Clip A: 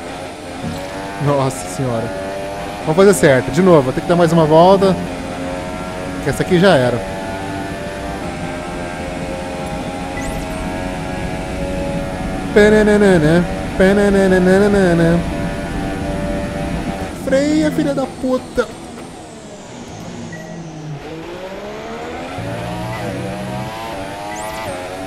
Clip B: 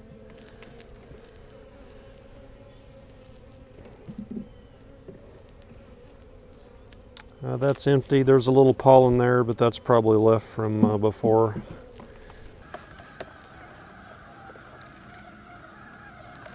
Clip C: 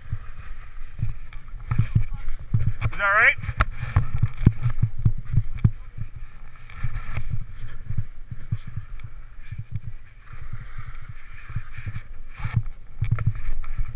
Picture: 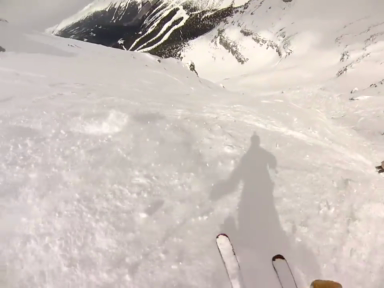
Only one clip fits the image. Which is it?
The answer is C